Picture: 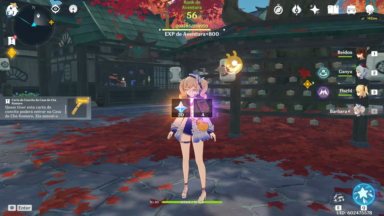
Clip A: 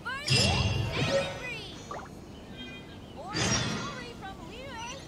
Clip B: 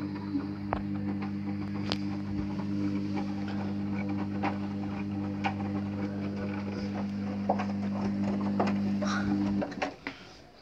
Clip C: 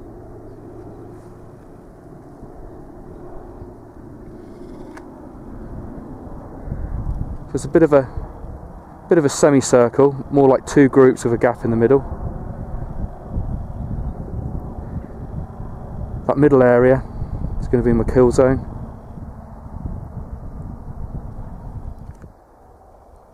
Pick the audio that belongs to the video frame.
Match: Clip A